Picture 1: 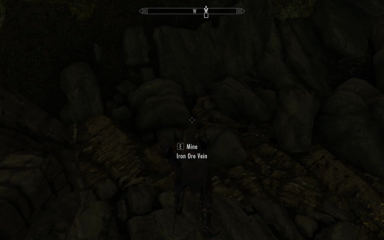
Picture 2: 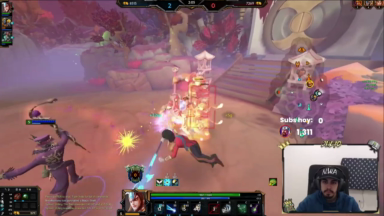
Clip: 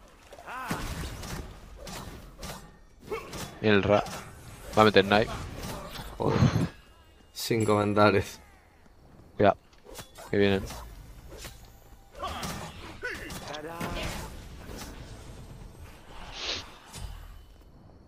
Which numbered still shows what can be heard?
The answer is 2